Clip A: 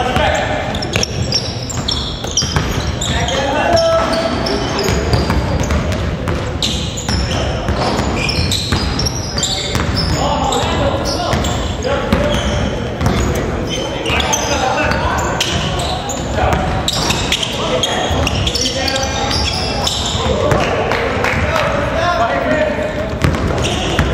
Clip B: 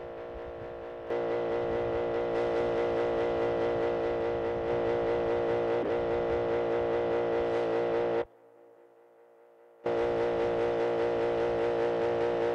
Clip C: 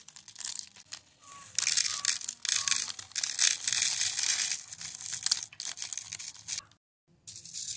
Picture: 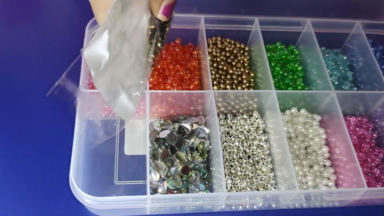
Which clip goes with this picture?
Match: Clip C